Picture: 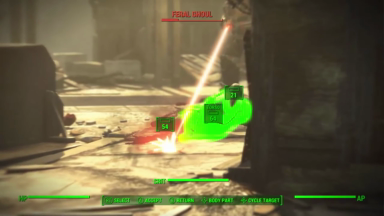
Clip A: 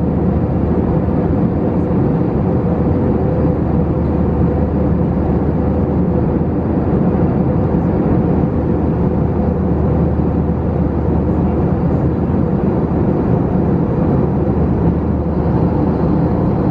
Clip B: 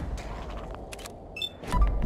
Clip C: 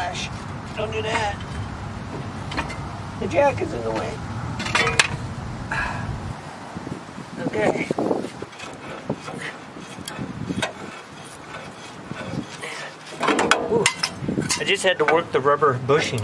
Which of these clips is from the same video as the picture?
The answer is B